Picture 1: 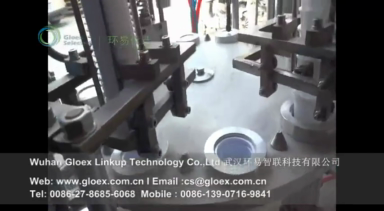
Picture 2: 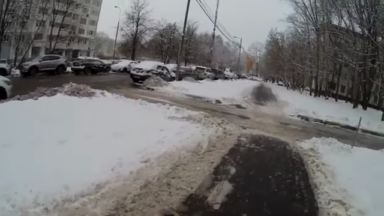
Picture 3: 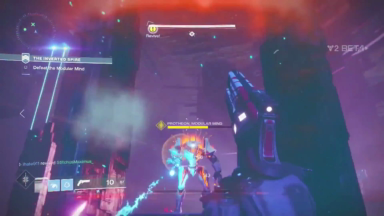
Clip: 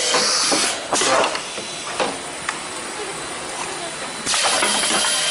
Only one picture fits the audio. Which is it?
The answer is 1